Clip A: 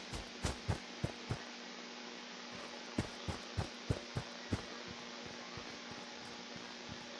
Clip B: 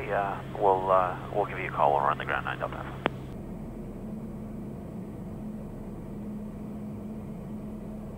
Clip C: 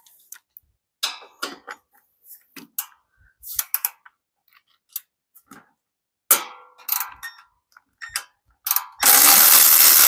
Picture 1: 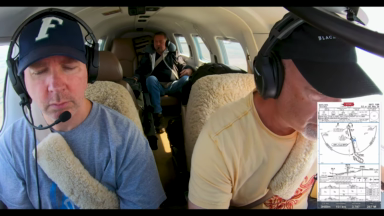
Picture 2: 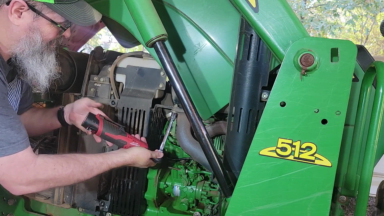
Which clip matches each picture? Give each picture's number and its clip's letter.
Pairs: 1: B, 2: C